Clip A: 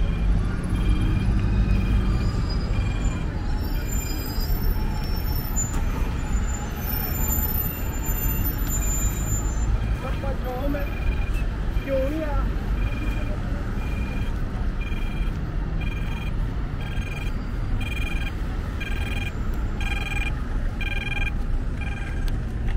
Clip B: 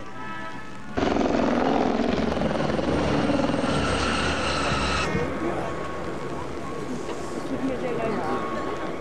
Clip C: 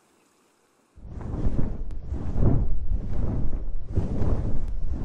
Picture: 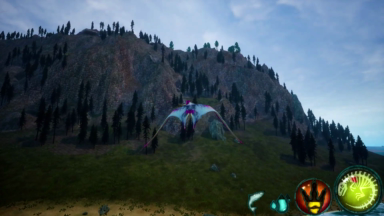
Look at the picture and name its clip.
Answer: C